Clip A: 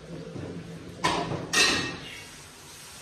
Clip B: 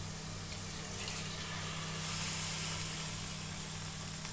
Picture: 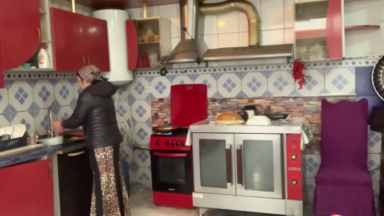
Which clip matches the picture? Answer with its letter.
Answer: A